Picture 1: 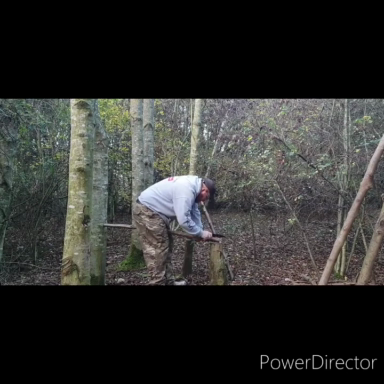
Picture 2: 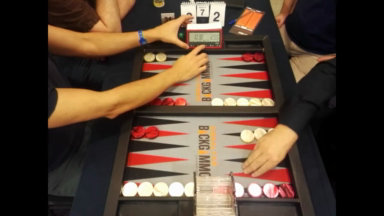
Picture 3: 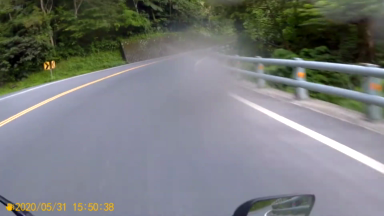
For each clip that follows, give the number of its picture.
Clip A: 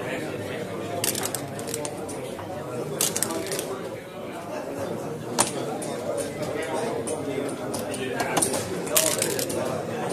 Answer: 2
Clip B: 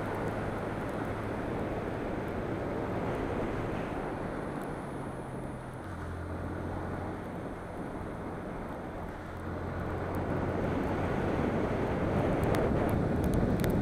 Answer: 3